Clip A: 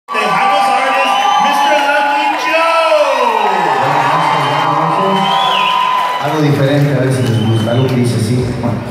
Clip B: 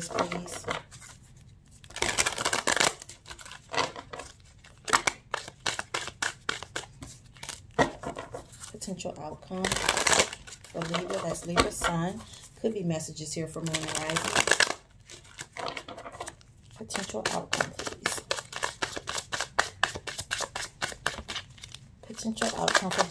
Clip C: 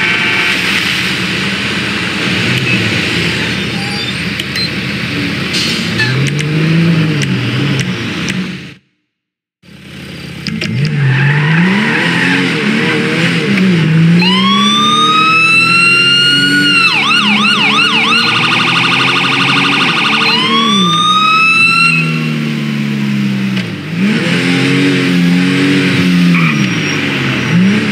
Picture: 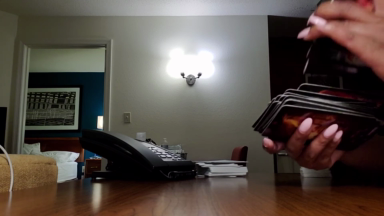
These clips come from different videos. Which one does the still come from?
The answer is B